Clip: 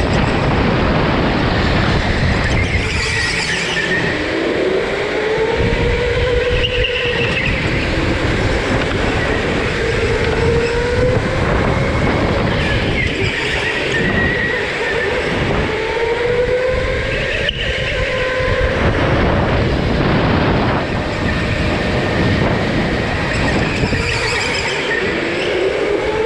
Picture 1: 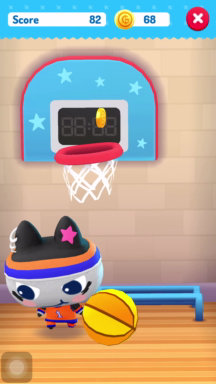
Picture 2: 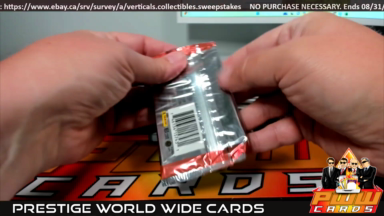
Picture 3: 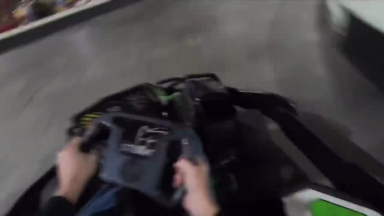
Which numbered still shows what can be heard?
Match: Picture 3